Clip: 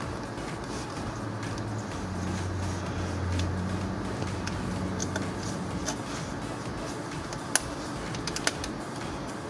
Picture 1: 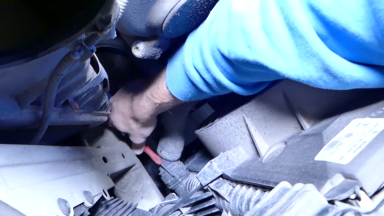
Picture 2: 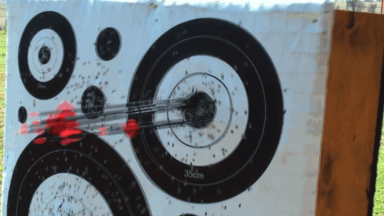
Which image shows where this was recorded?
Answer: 1